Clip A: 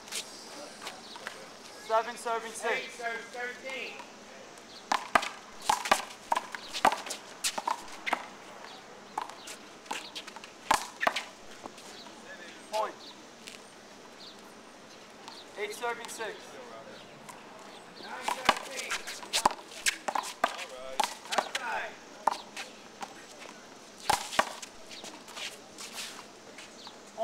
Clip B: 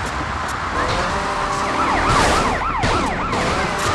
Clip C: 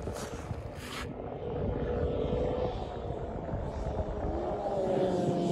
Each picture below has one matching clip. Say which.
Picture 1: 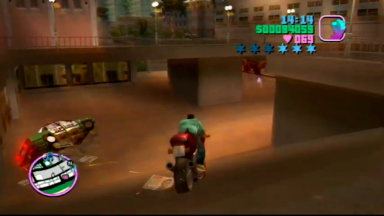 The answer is B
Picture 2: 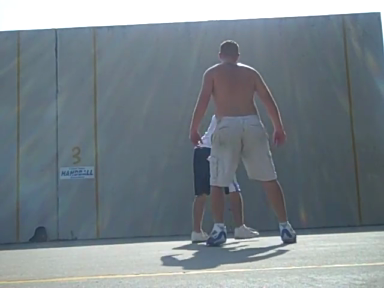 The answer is A